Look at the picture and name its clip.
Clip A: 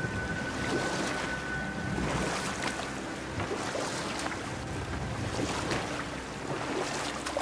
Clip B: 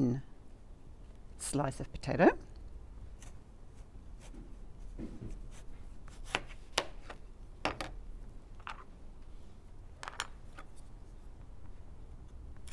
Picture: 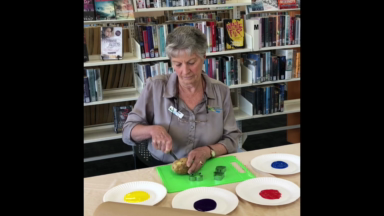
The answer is B